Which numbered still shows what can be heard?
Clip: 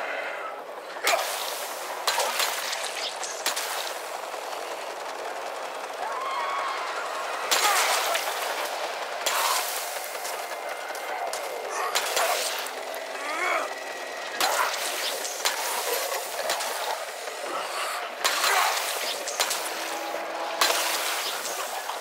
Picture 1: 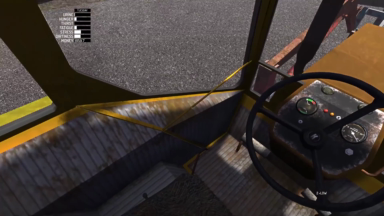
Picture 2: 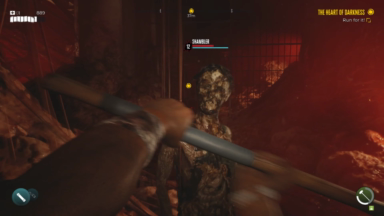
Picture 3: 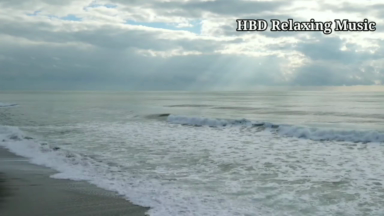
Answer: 2